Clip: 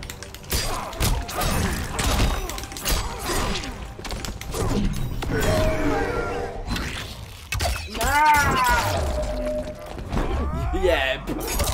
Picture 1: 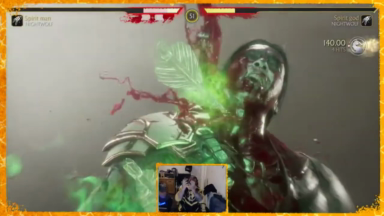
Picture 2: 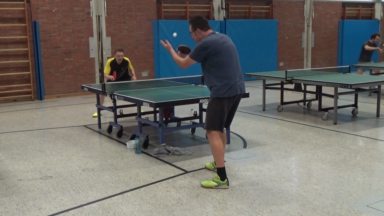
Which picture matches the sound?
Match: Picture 1